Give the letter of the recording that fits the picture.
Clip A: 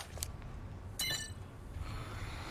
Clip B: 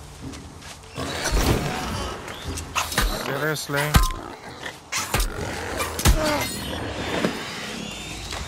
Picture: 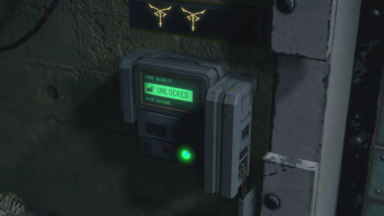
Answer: A